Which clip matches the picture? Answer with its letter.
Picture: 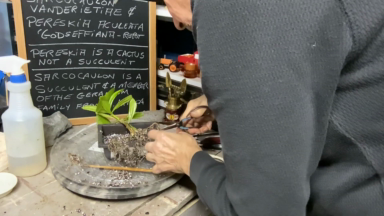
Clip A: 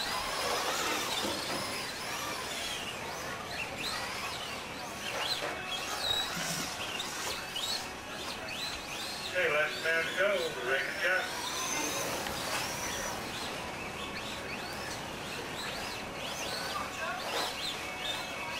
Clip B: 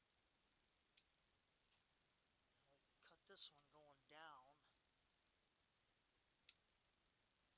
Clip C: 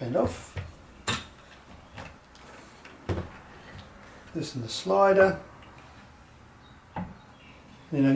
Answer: B